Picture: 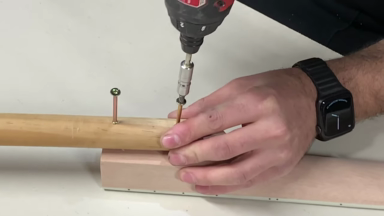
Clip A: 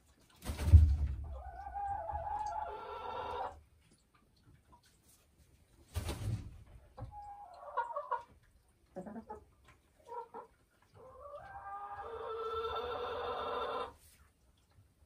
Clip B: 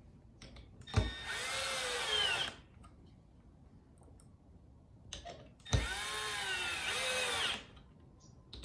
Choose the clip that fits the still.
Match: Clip B